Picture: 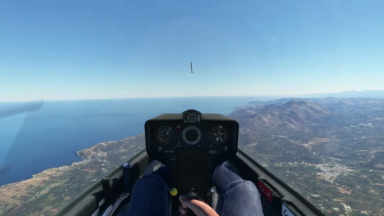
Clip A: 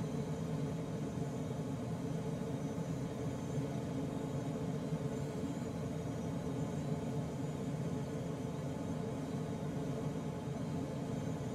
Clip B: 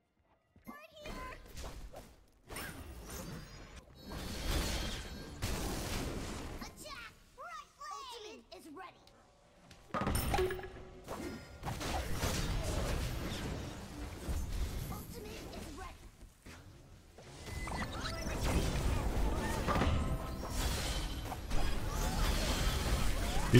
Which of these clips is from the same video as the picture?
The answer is A